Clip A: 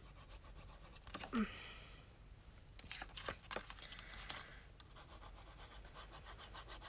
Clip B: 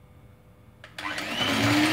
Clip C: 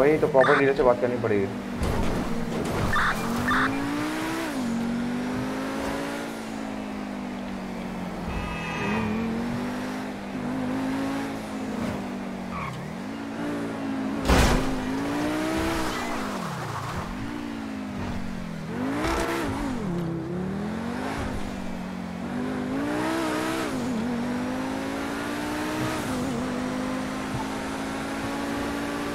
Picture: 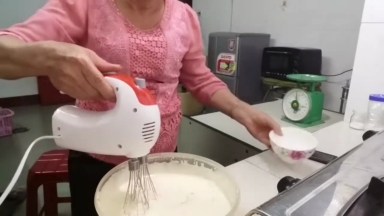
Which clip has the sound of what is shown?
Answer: B